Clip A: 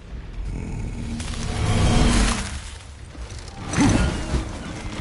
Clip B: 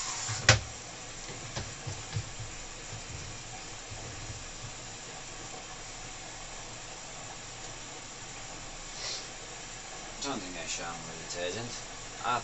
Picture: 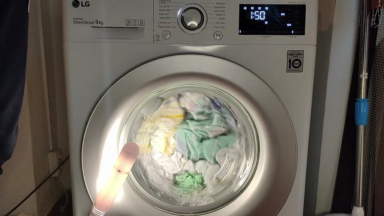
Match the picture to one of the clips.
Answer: B